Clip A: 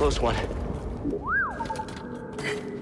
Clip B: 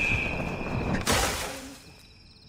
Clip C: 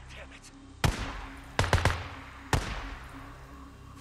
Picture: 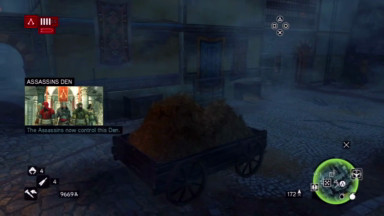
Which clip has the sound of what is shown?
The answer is B